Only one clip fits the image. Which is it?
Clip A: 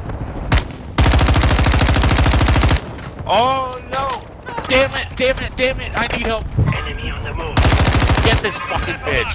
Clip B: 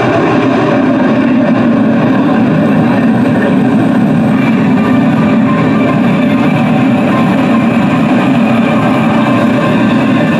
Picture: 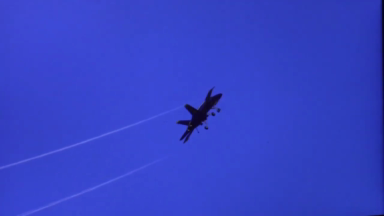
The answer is B